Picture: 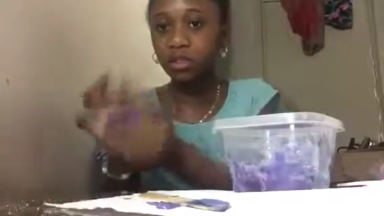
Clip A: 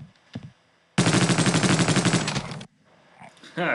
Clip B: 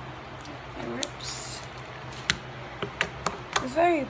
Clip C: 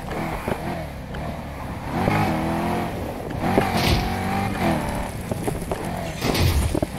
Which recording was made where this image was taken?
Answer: B